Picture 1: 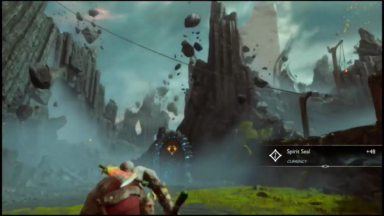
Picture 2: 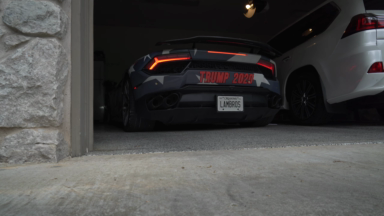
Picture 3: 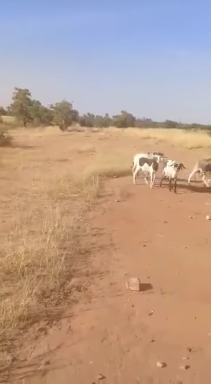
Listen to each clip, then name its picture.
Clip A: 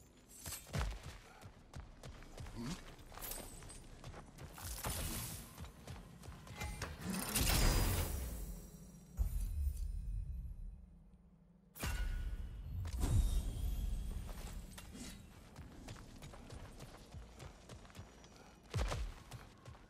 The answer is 1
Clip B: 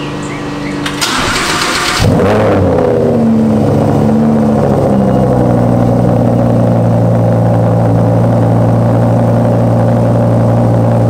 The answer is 2